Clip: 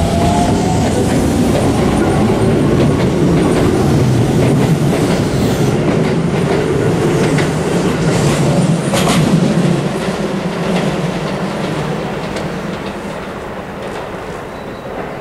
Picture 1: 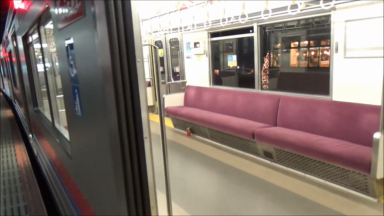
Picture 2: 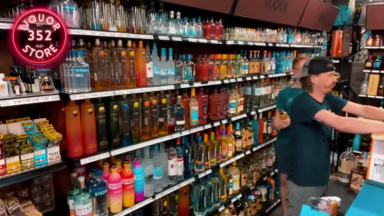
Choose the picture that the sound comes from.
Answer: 1